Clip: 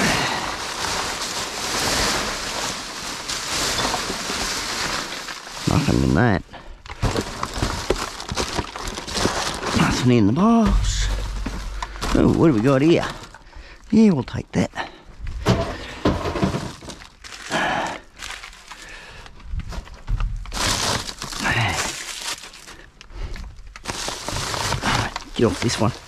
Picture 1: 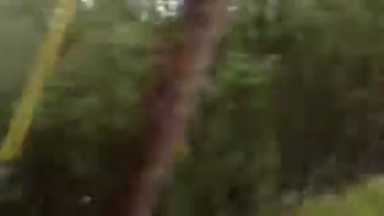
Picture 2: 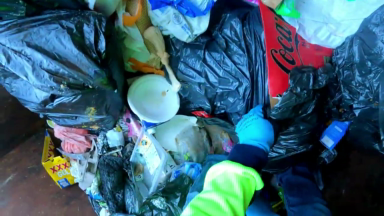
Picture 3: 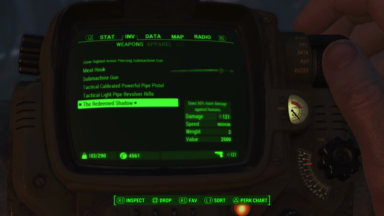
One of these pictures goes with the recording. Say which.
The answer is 2